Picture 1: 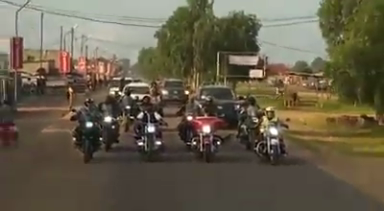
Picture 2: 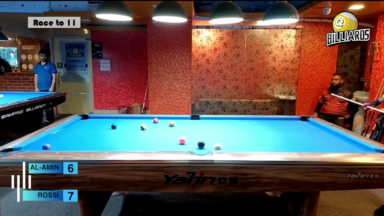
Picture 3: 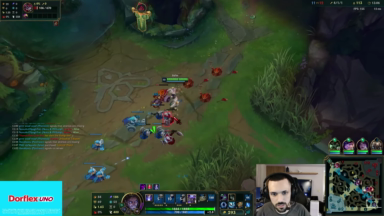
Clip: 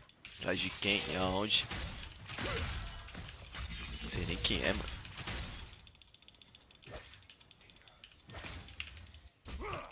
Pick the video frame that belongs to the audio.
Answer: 3